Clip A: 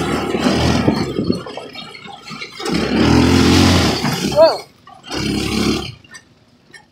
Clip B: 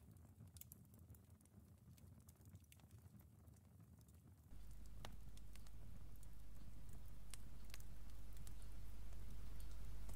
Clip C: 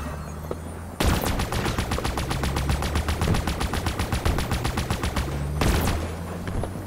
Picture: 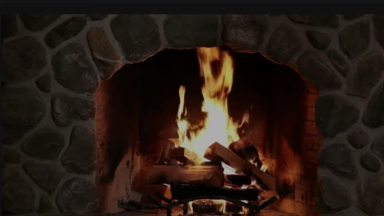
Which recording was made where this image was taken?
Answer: B